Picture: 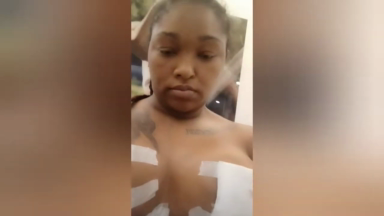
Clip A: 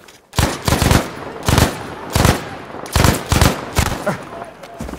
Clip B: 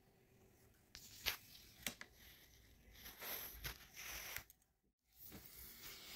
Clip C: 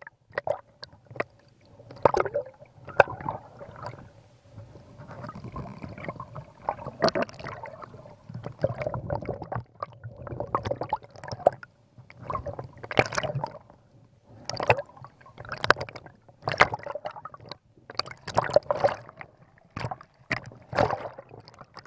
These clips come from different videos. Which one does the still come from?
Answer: B